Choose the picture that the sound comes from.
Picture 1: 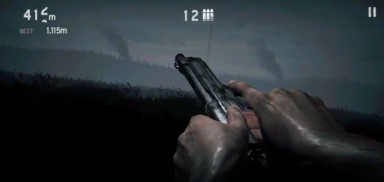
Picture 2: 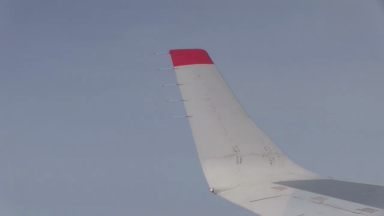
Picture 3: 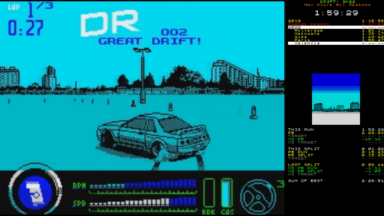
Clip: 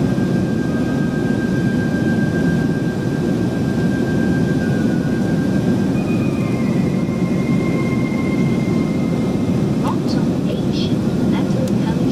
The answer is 2